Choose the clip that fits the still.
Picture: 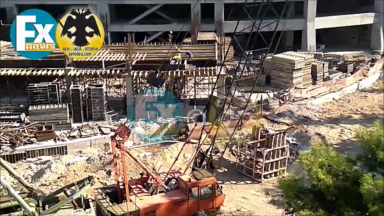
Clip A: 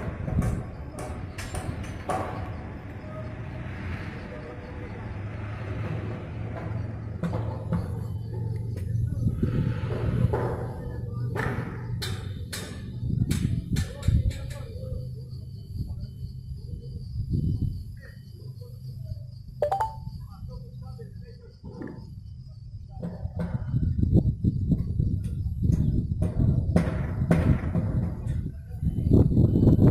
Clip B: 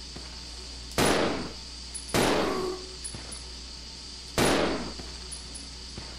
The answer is A